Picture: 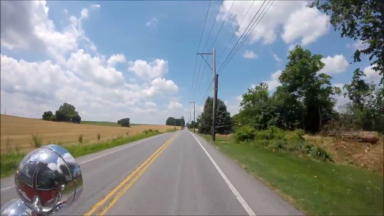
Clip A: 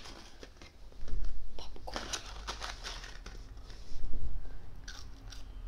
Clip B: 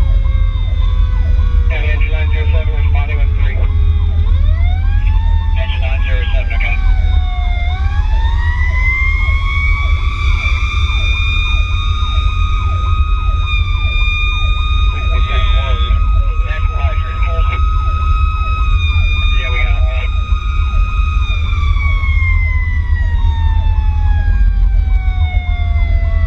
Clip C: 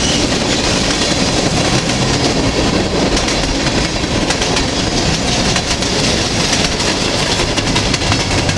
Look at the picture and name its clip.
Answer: B